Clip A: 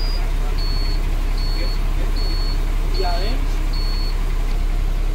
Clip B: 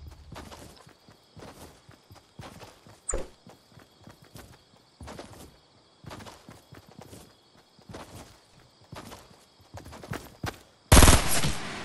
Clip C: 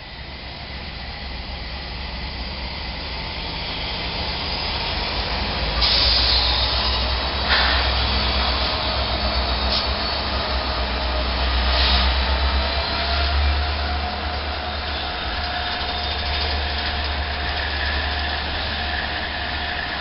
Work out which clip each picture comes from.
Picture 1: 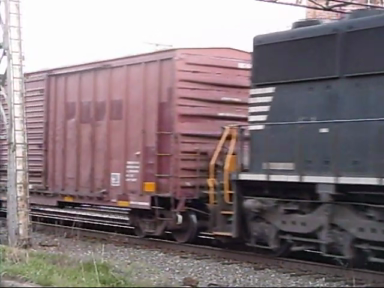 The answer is C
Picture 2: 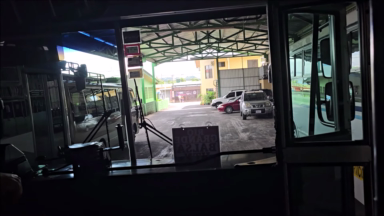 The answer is A